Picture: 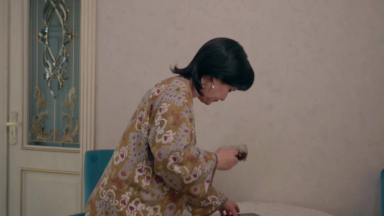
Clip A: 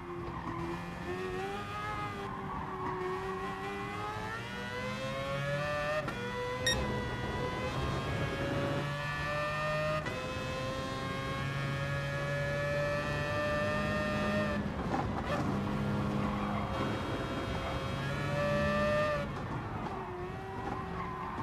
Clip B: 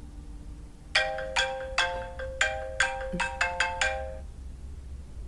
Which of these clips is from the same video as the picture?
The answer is B